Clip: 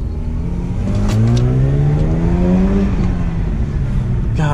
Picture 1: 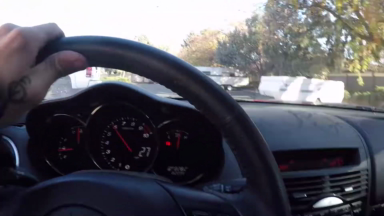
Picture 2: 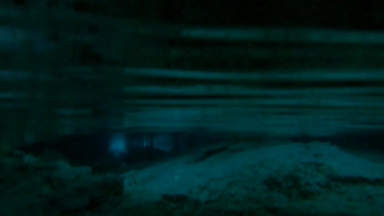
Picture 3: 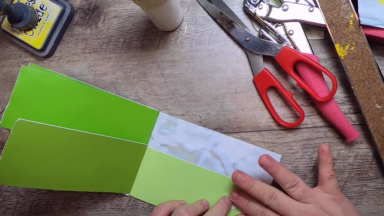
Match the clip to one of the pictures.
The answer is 1